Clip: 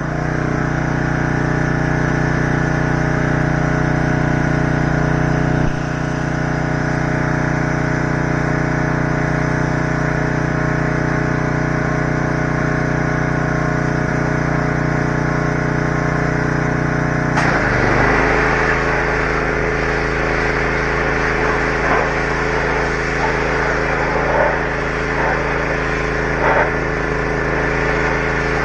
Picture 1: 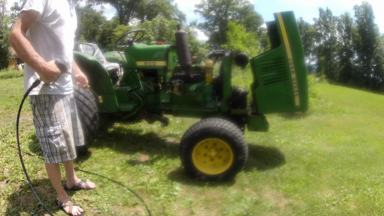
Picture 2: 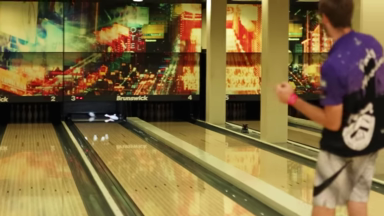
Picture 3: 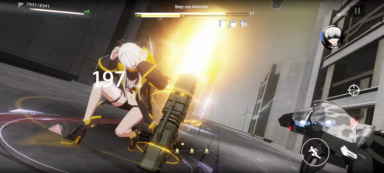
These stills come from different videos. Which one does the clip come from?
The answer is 1